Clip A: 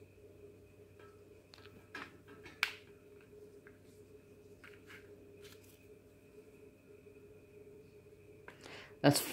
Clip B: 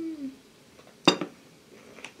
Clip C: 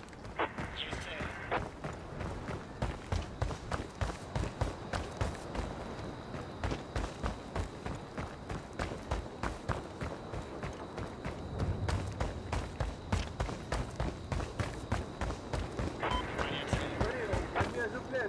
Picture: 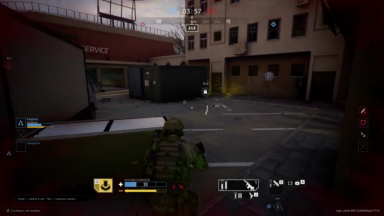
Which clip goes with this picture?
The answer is C